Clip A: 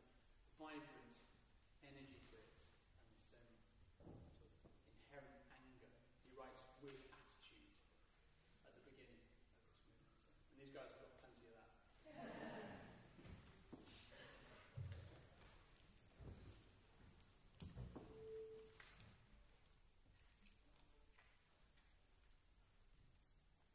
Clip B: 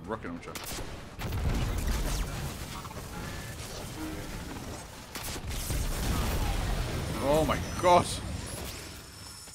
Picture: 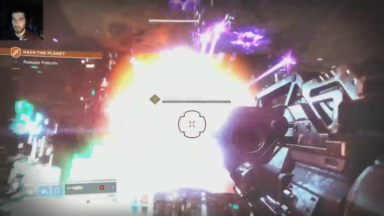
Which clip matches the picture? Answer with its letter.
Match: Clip B